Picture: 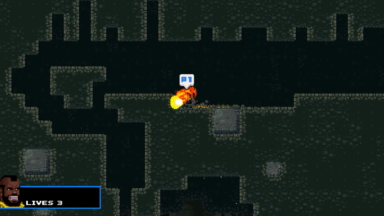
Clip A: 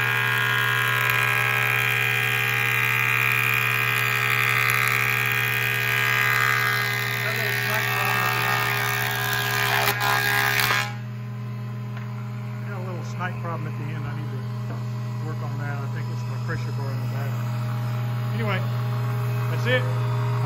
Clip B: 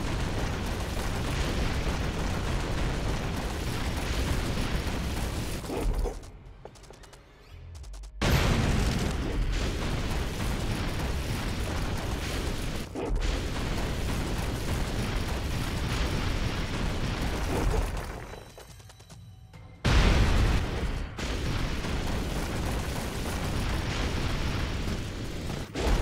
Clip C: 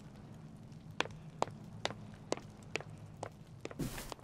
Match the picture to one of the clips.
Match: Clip B